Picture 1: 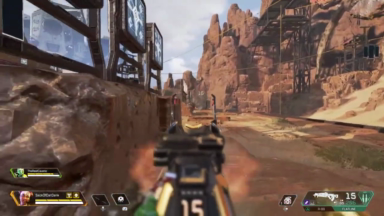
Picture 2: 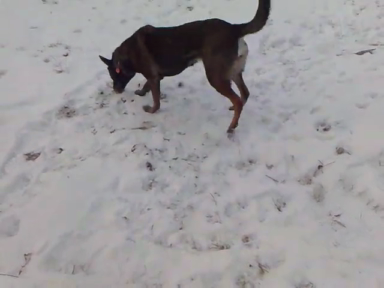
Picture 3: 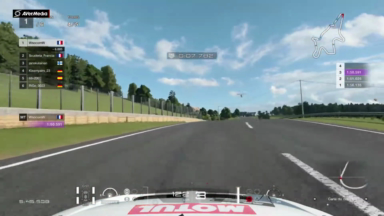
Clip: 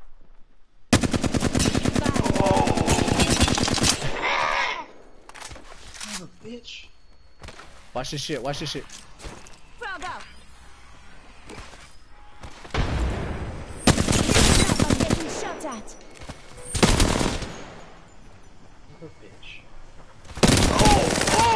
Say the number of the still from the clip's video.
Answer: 1